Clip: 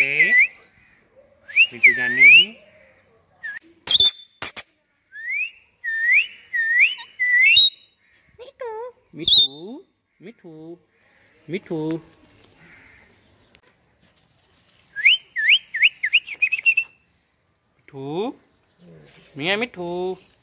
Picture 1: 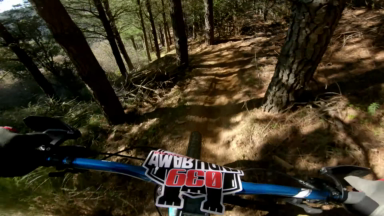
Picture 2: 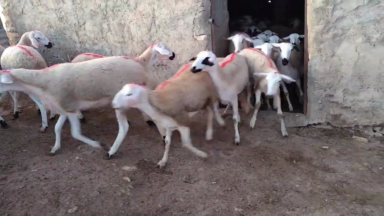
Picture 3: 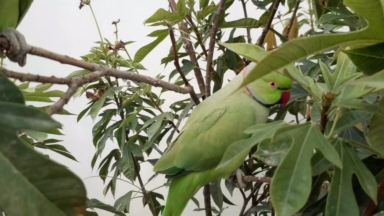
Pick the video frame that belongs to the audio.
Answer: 3